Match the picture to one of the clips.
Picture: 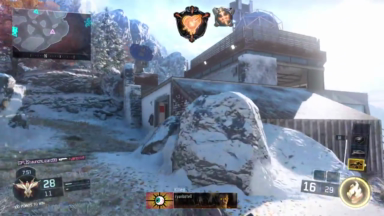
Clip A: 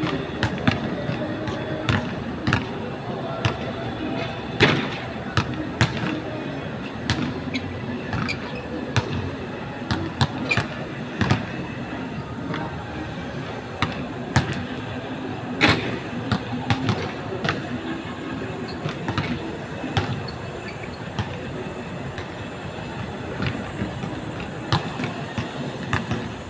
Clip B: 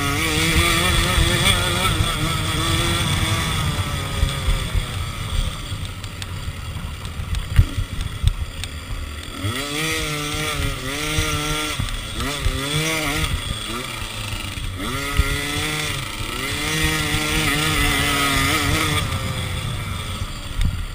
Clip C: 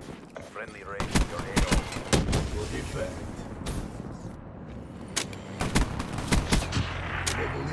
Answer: C